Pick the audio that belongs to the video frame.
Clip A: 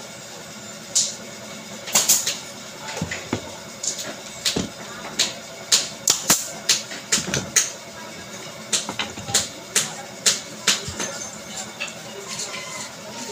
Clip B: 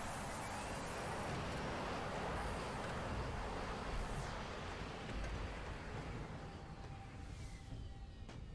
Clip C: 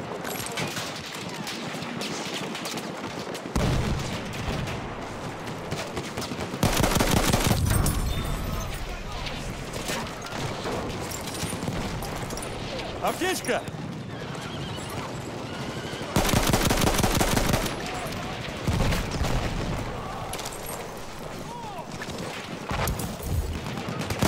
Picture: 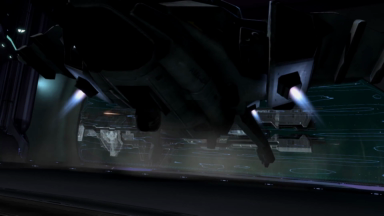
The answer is B